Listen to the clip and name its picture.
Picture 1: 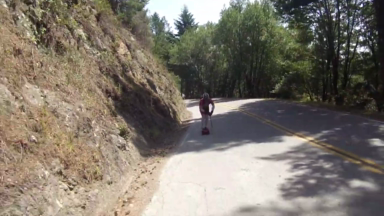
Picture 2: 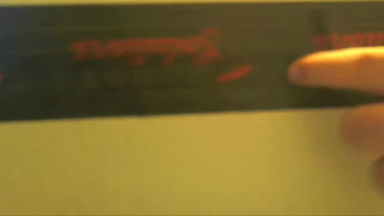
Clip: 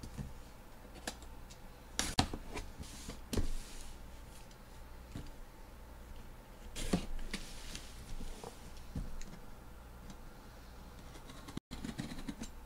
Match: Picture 2